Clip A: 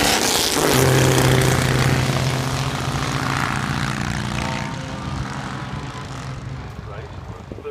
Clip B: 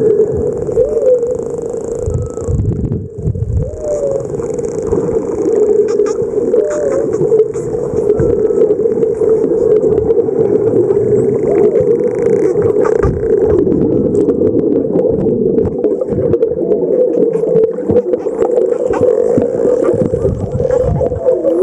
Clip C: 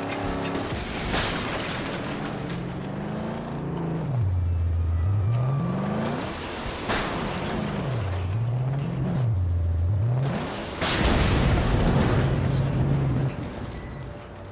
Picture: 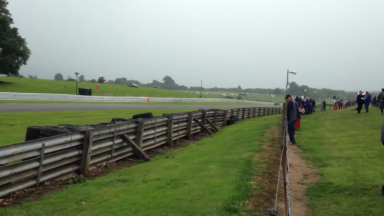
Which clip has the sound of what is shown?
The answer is A